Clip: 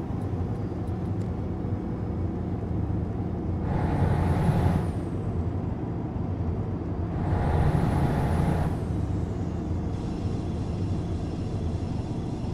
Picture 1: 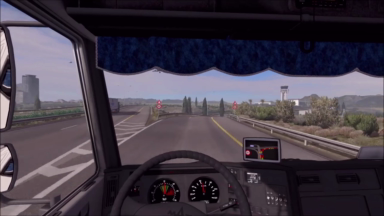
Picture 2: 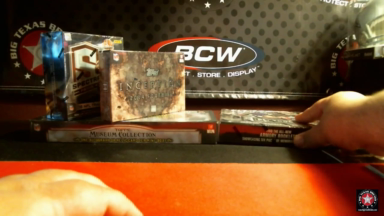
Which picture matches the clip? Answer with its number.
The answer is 1